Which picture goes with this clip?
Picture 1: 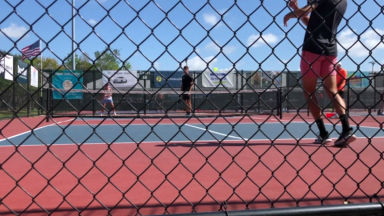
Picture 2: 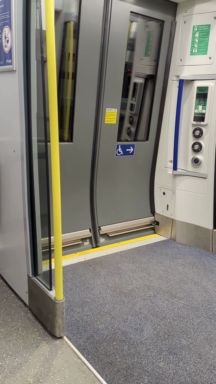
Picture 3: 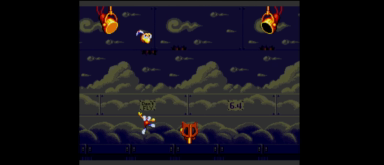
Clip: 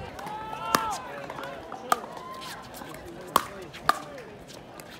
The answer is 1